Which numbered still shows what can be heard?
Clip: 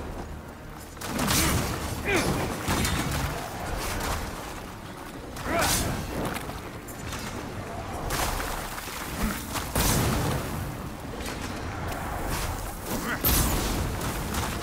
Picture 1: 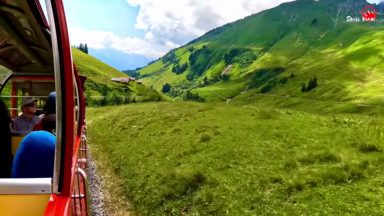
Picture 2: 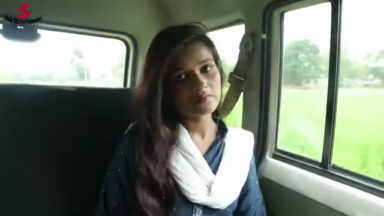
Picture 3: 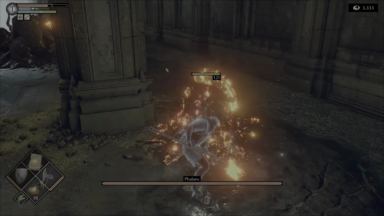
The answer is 3